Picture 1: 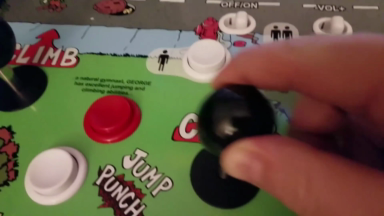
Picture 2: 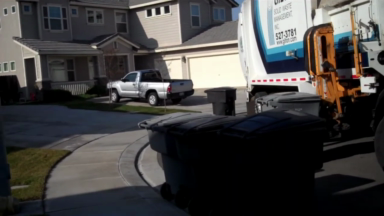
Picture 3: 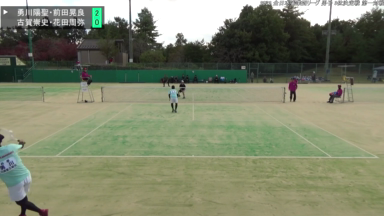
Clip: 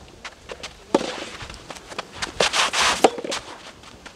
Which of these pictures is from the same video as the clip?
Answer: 3